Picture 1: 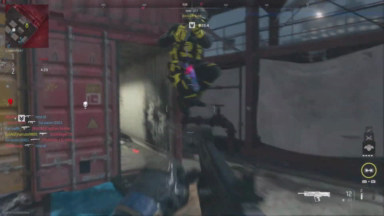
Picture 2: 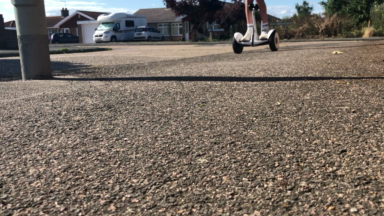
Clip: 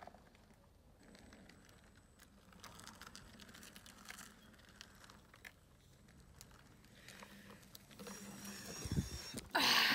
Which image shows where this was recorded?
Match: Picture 2